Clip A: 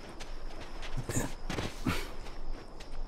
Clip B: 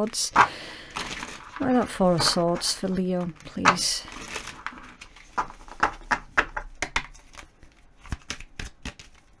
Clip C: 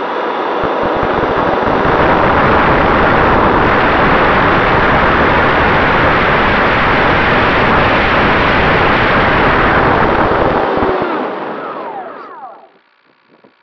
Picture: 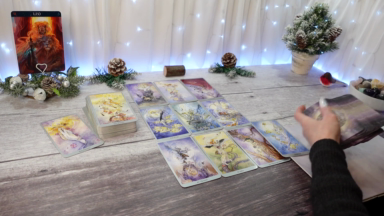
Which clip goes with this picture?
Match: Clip B